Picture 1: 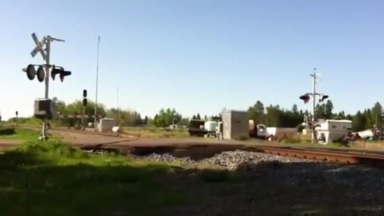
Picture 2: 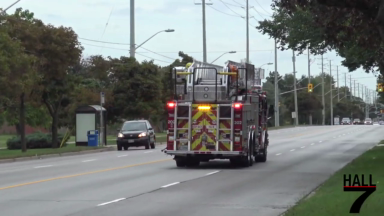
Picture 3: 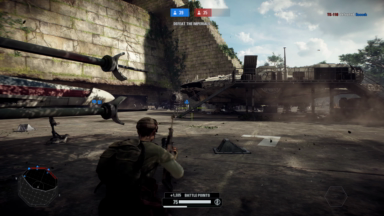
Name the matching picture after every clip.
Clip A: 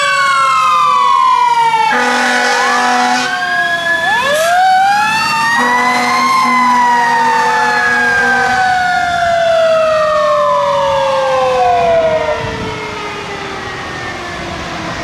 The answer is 2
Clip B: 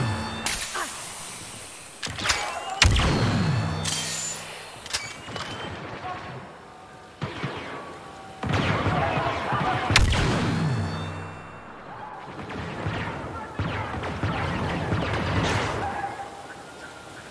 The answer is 3